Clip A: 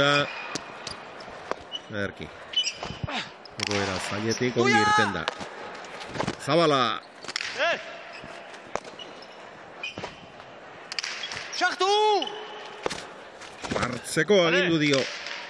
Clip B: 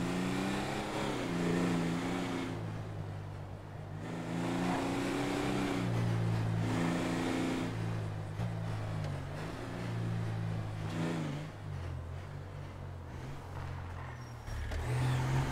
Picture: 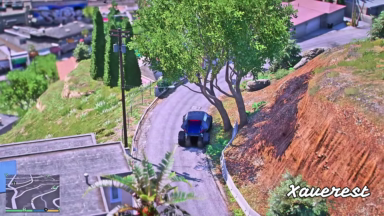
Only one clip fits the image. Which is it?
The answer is B